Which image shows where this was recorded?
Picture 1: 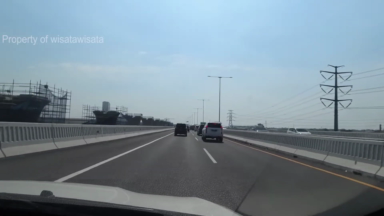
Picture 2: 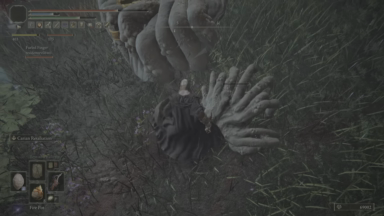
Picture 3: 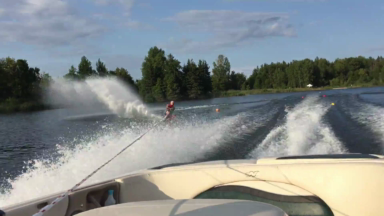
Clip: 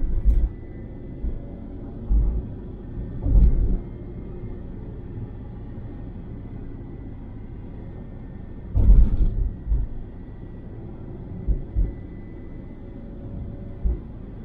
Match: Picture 1